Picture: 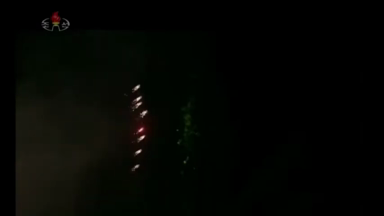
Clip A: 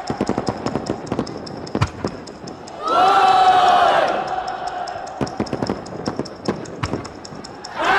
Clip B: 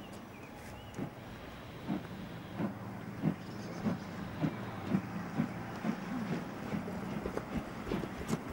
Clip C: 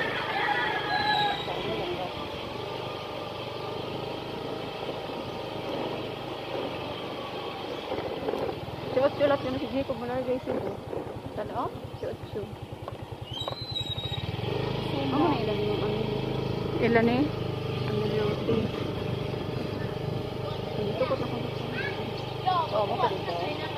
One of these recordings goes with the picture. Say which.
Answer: A